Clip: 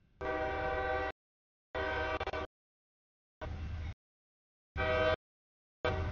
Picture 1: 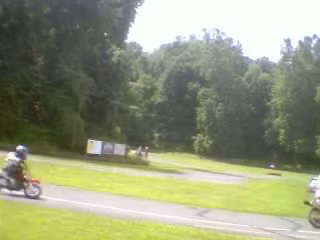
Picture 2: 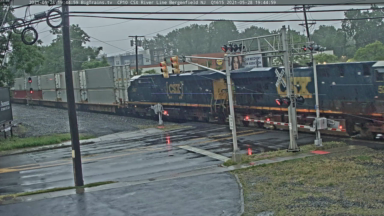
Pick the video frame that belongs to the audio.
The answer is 2